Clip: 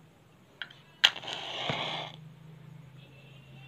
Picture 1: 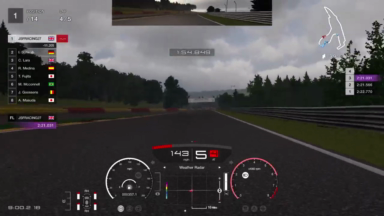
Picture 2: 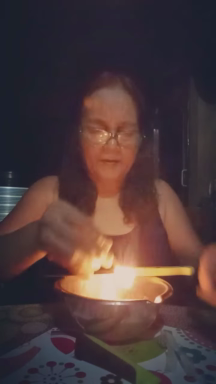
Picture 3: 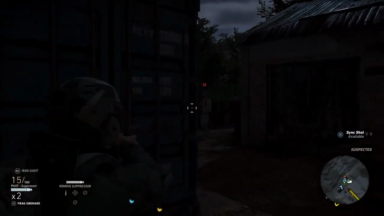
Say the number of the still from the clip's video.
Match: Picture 2